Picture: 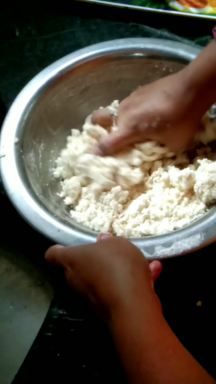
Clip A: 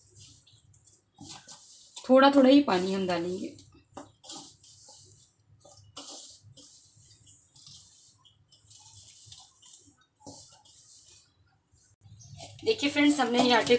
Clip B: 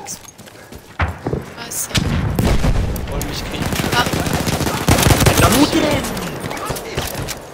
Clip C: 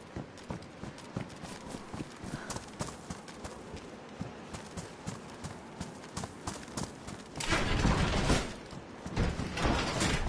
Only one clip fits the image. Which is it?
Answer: A